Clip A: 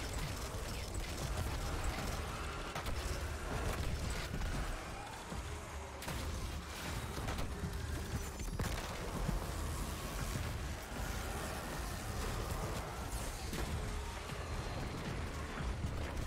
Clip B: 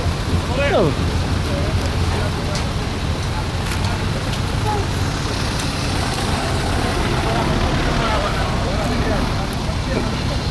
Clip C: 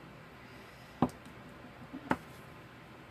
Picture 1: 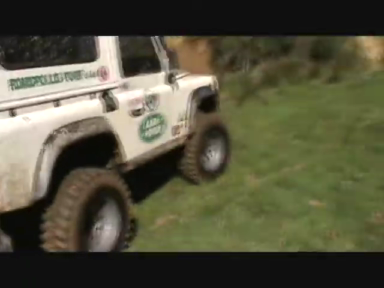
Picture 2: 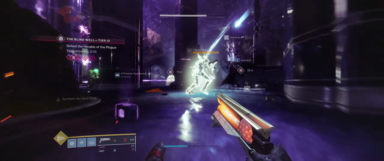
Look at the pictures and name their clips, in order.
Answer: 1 B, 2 A